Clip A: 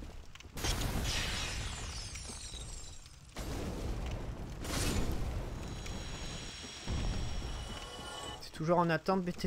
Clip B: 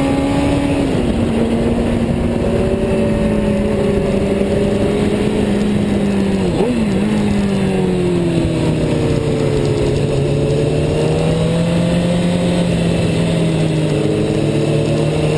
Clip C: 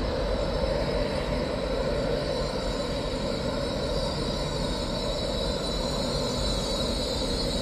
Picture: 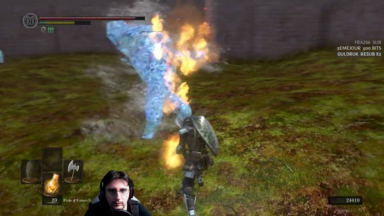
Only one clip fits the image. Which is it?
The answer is A